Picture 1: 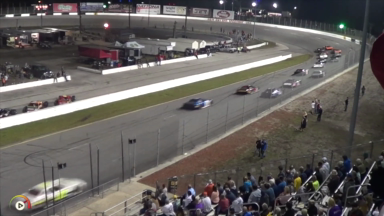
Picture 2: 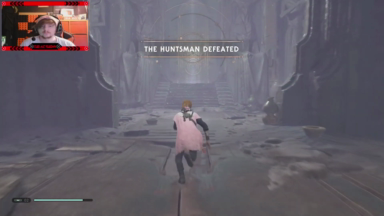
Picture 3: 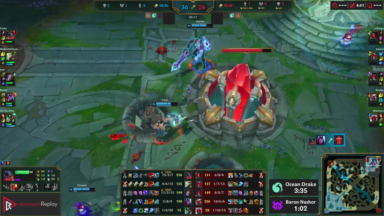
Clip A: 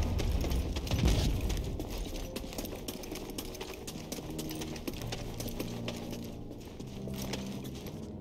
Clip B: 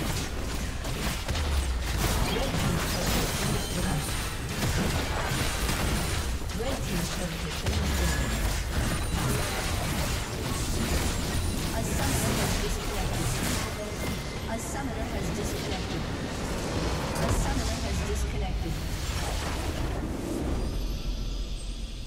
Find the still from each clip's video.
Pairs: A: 2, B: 3